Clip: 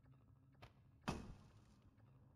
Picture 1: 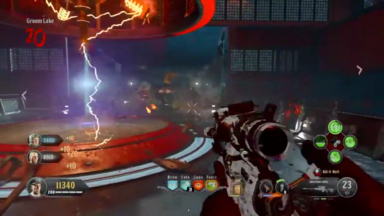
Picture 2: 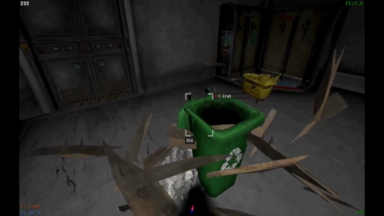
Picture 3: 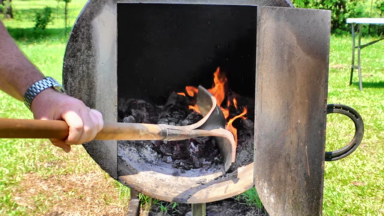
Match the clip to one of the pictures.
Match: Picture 2